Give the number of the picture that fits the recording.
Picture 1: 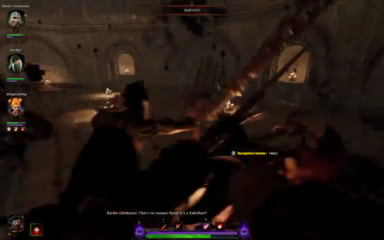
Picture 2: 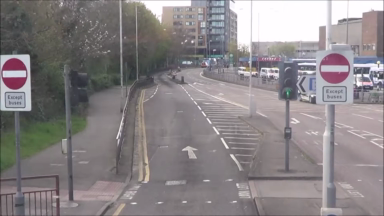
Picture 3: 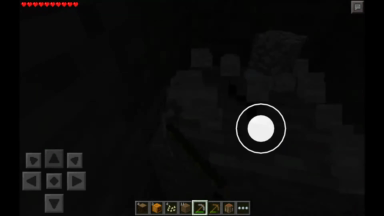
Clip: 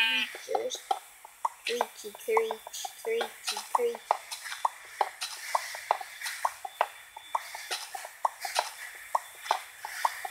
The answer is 3